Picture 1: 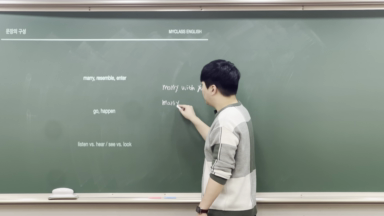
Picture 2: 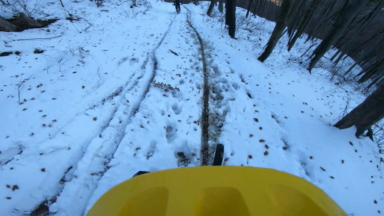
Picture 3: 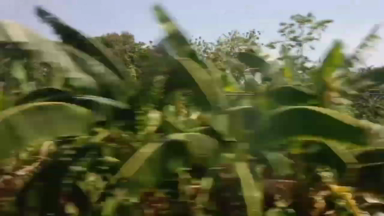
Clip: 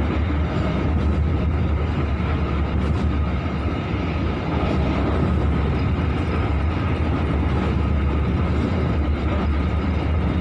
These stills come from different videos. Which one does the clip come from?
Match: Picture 3